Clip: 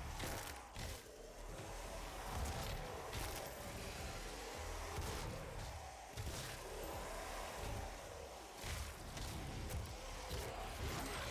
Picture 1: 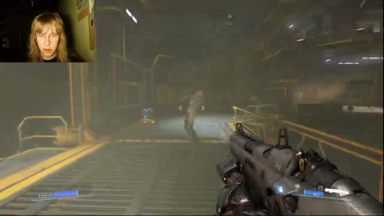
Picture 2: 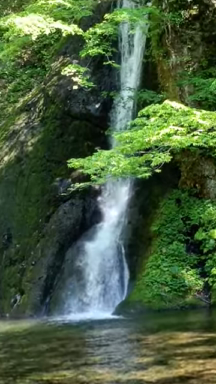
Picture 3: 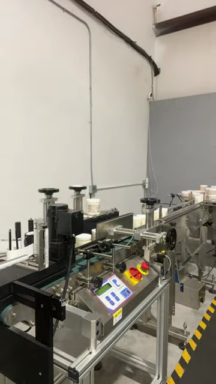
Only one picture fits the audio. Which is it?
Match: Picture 1